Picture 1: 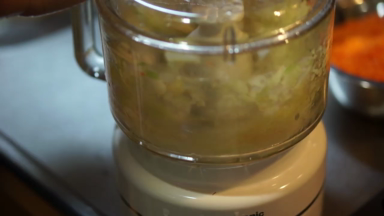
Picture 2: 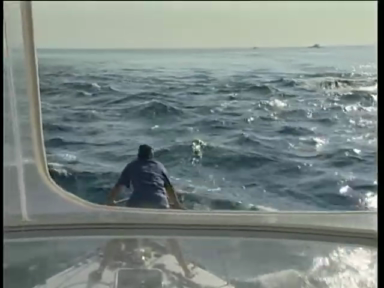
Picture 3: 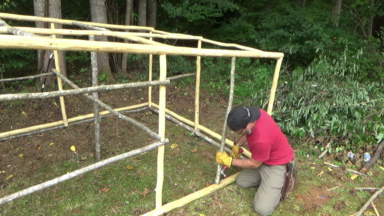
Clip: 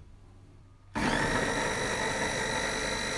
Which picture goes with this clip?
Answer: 1